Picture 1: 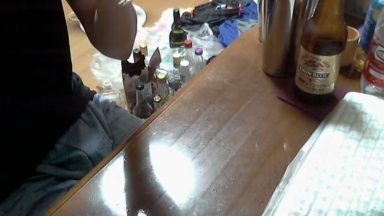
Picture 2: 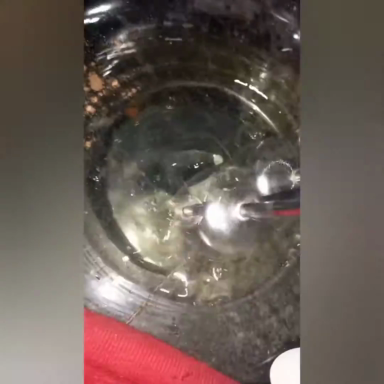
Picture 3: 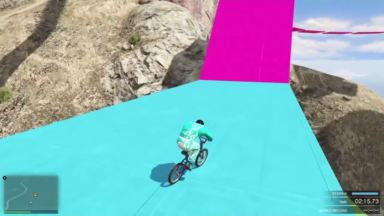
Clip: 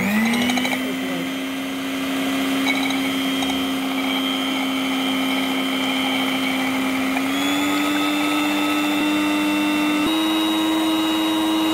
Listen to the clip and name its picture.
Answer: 2